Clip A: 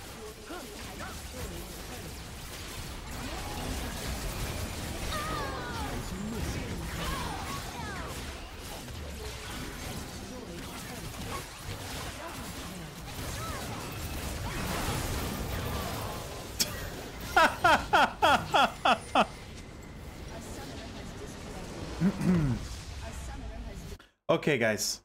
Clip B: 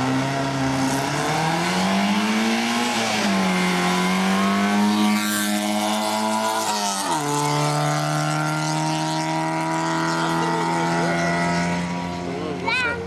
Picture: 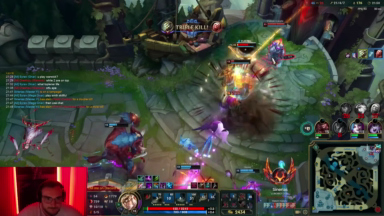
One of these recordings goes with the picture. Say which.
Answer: A